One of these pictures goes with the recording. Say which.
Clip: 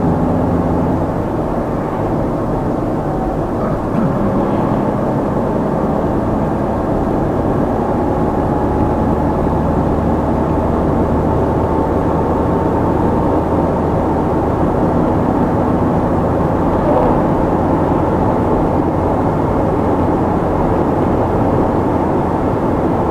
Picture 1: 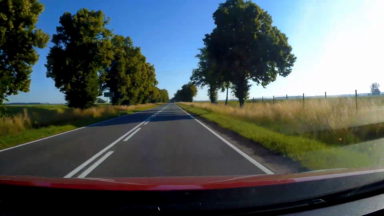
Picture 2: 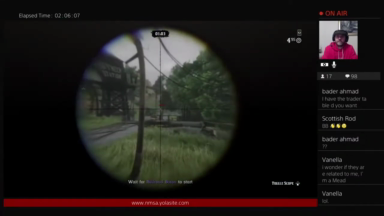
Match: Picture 1